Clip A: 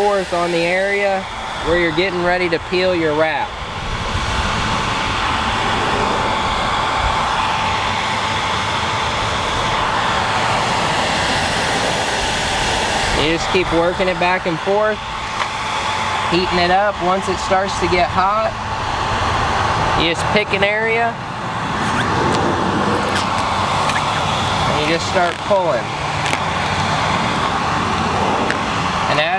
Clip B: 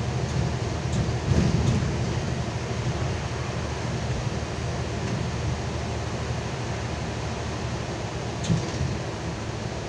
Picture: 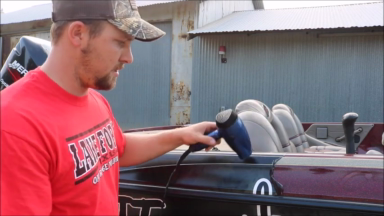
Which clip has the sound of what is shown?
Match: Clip A